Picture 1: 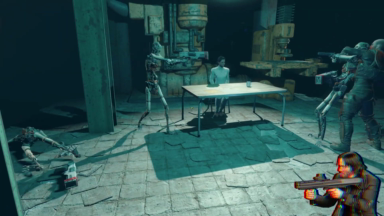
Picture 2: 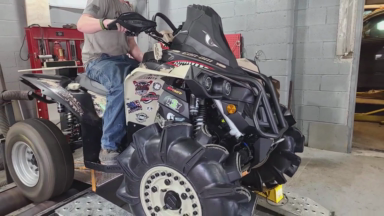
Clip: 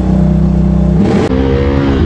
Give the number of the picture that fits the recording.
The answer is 2